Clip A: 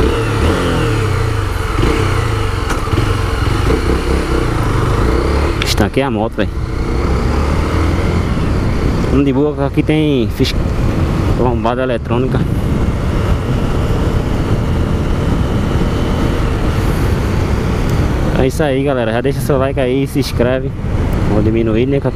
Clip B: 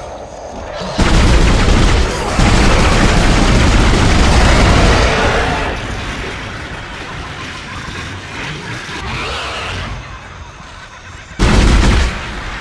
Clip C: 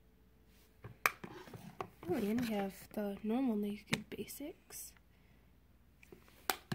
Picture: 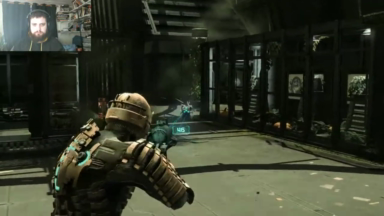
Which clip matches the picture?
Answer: B